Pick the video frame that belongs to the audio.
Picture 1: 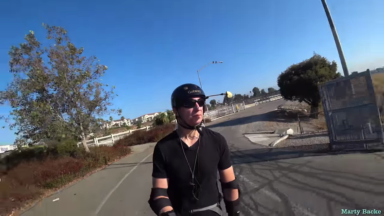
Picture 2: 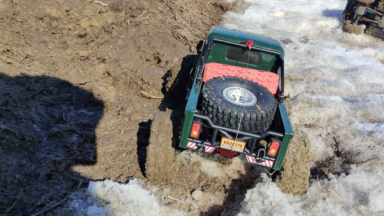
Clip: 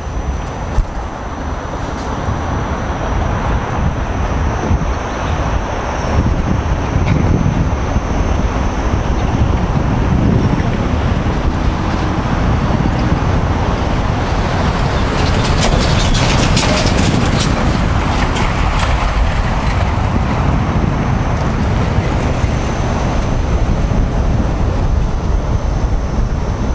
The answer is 1